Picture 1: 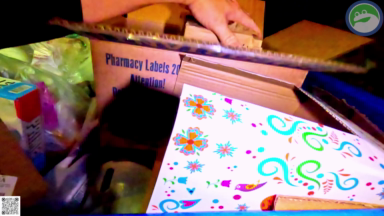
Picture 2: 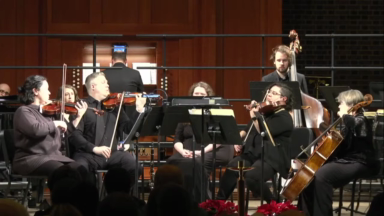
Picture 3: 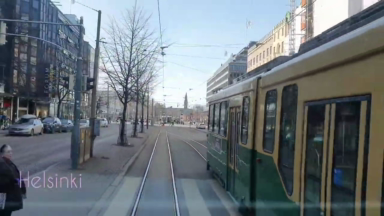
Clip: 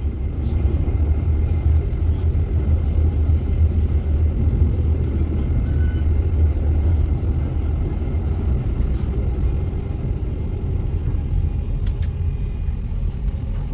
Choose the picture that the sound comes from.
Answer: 3